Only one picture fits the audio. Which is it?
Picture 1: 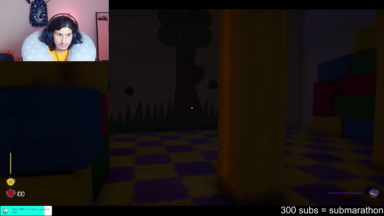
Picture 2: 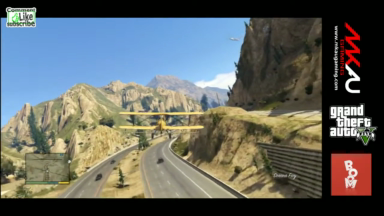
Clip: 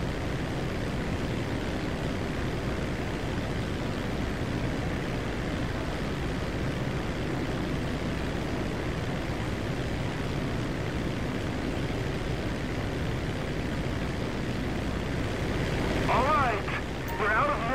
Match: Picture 2